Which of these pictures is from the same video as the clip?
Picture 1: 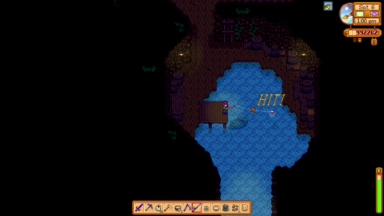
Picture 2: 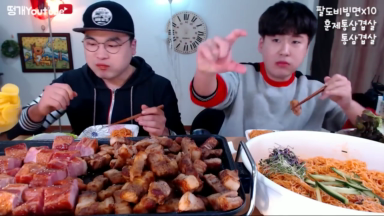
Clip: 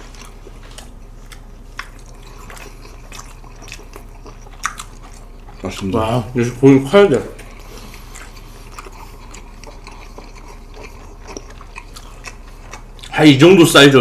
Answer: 2